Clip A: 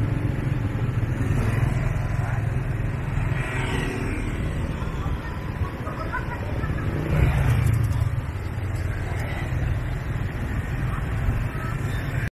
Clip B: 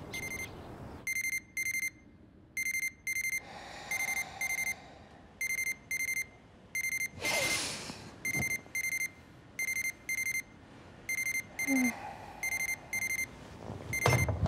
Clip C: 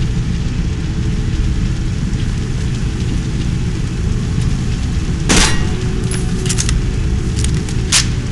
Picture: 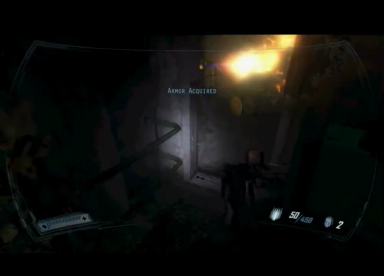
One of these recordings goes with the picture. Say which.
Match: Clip C